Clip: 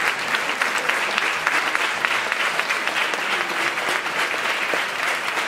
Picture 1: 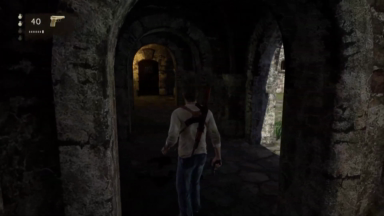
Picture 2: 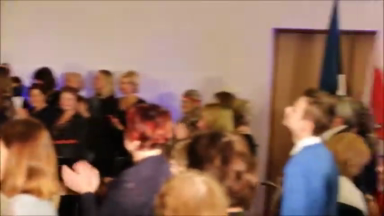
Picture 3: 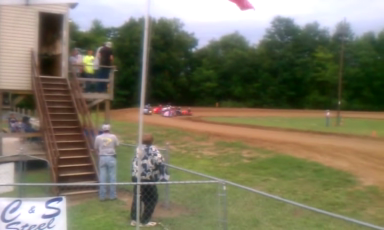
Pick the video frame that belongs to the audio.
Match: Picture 2